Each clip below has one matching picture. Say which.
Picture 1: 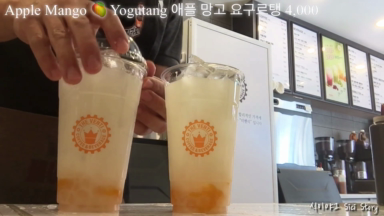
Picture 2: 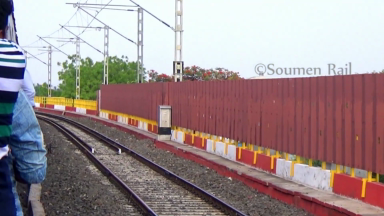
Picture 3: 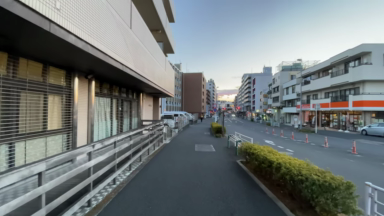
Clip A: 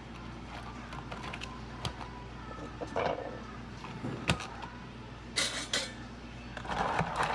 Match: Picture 1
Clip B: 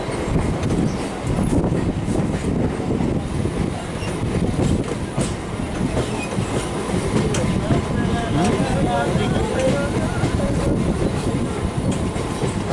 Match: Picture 2